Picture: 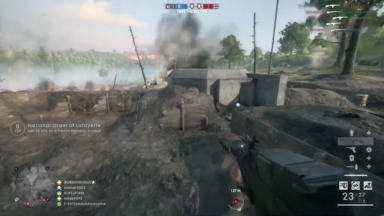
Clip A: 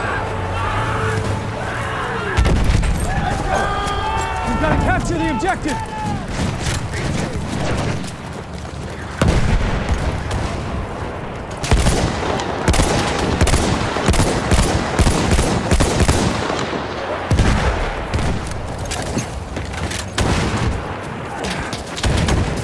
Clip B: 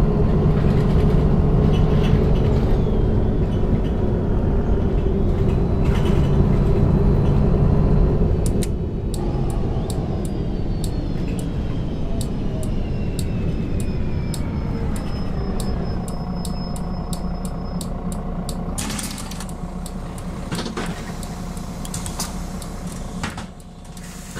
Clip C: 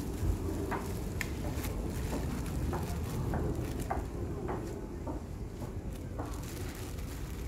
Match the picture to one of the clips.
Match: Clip A